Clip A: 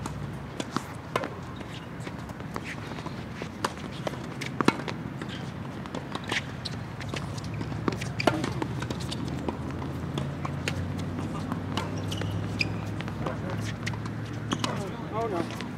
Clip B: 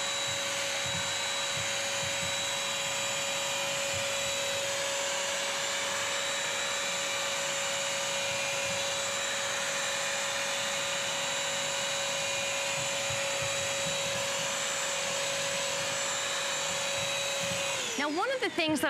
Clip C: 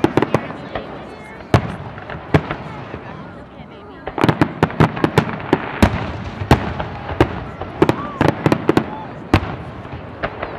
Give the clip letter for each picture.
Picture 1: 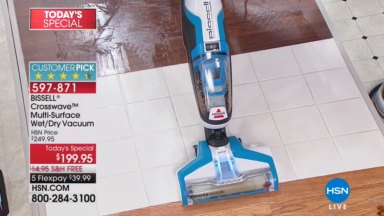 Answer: B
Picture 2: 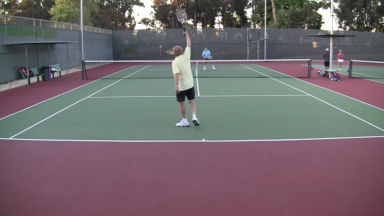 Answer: A